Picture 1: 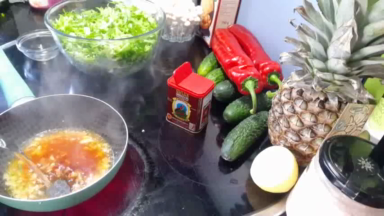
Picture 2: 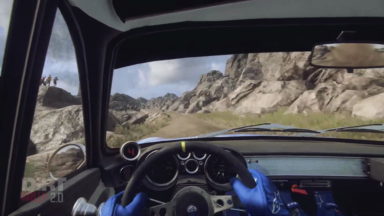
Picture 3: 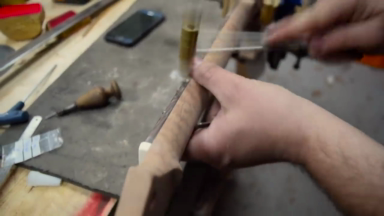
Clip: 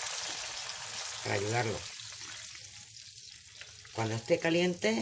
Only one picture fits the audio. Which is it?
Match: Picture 1